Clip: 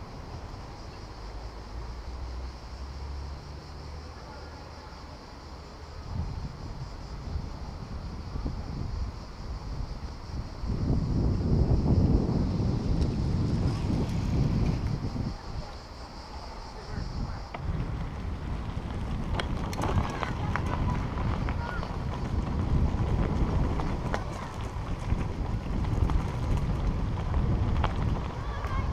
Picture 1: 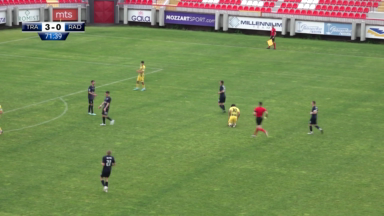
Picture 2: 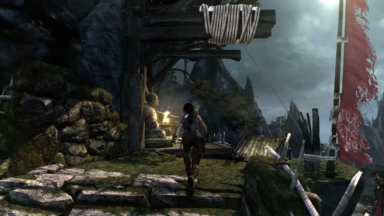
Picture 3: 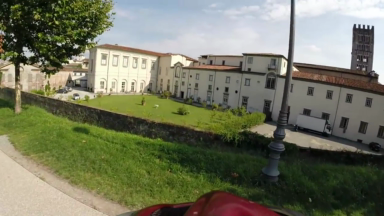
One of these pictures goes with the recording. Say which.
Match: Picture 3